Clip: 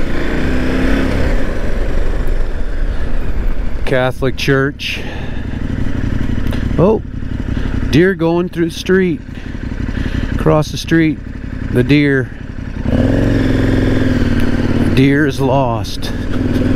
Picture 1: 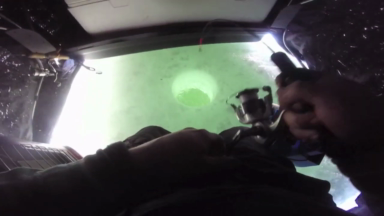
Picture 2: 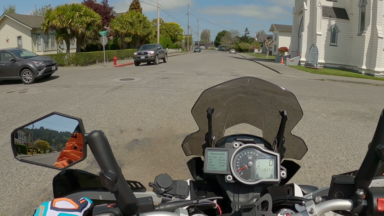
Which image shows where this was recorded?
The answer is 2